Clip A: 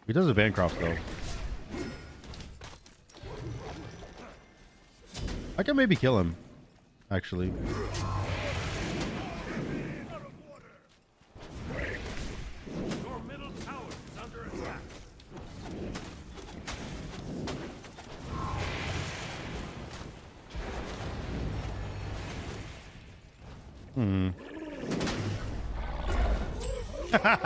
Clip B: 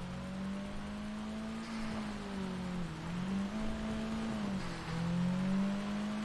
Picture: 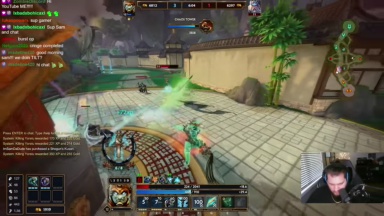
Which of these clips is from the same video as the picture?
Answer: A